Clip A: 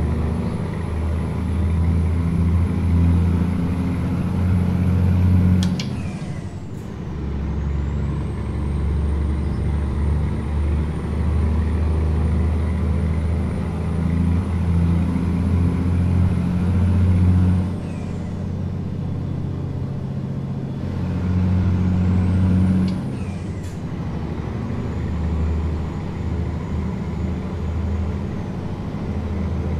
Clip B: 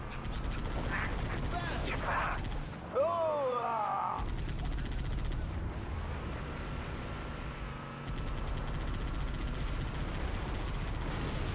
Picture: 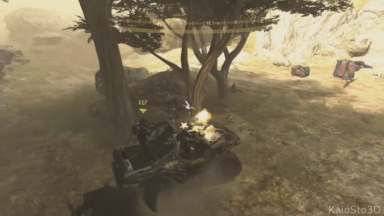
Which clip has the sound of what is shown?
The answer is B